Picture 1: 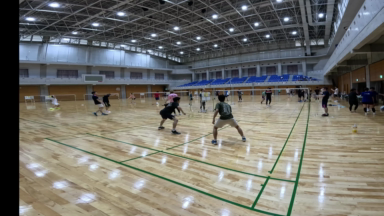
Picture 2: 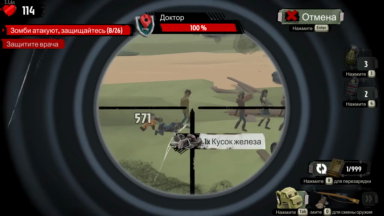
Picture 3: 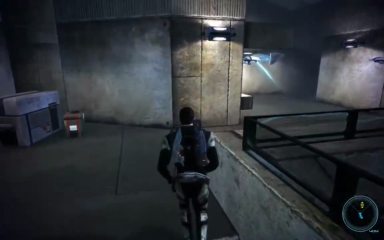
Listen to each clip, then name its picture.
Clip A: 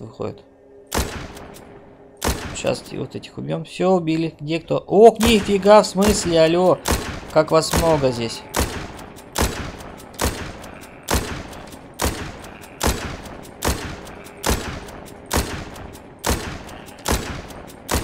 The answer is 2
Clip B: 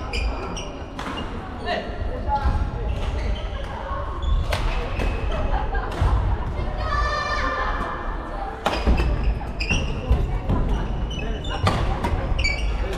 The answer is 1